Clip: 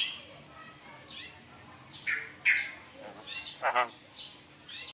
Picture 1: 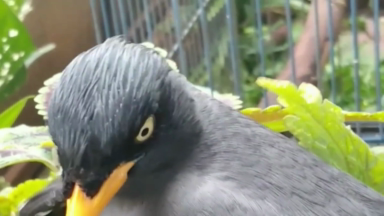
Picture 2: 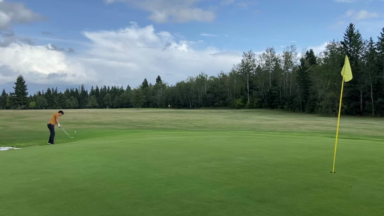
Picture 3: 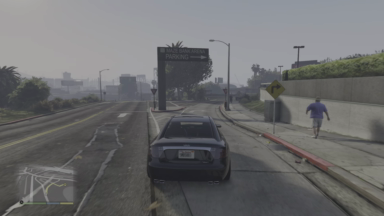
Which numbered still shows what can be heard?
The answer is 1